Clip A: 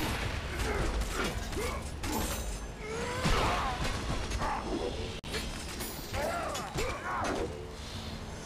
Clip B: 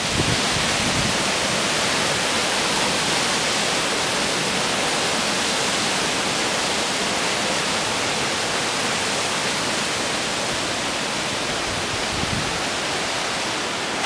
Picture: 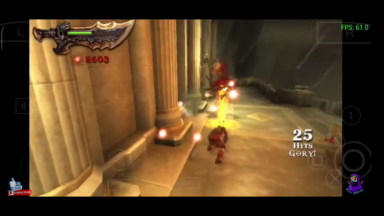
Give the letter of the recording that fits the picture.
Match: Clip A